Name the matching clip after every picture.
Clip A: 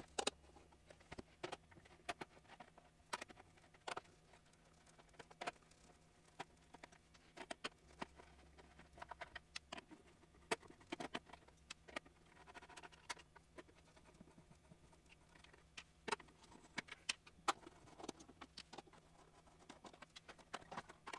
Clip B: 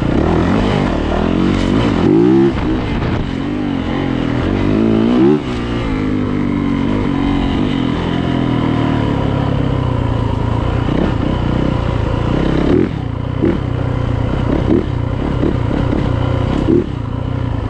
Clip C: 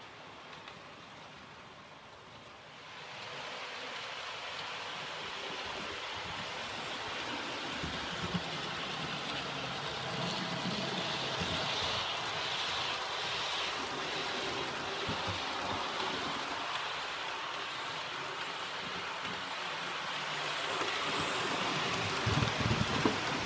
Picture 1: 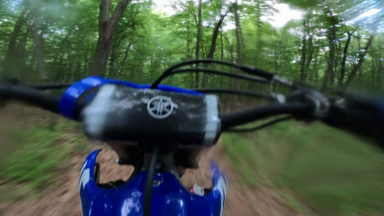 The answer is B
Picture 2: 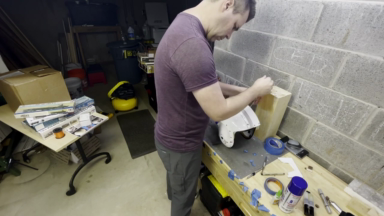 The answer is A